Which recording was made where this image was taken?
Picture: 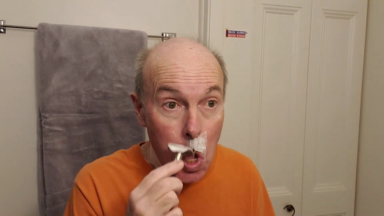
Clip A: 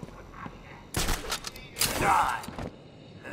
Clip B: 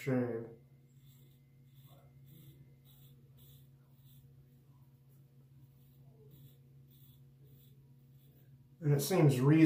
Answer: B